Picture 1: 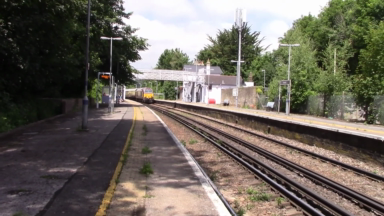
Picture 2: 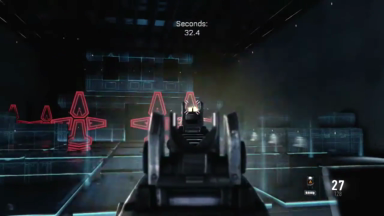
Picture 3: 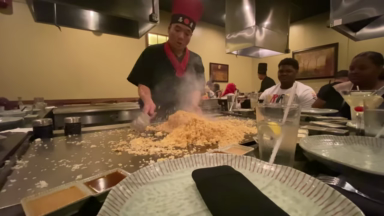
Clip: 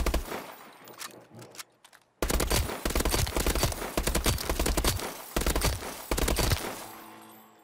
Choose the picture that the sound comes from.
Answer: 2